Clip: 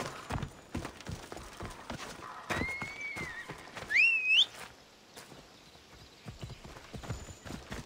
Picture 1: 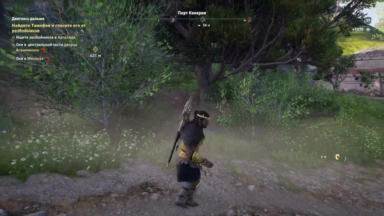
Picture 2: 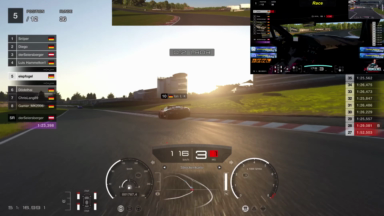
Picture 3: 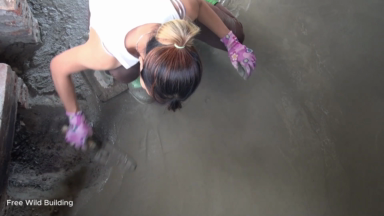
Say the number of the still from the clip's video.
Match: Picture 1